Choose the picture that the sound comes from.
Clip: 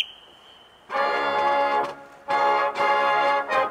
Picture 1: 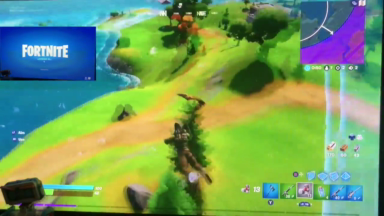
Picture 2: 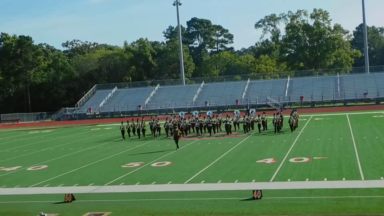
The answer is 2